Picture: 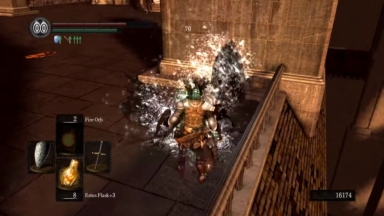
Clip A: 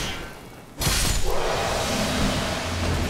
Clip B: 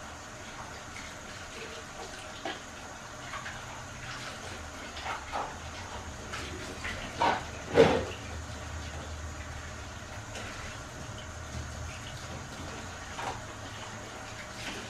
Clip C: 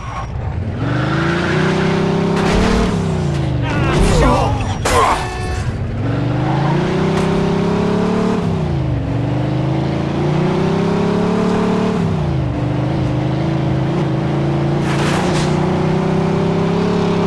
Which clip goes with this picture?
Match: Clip A